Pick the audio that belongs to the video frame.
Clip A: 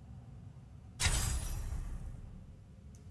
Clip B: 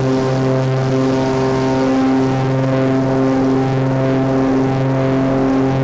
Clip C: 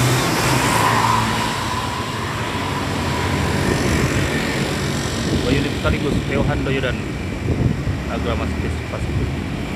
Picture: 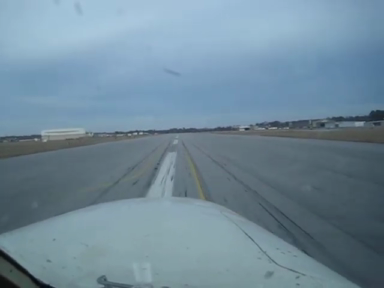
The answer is B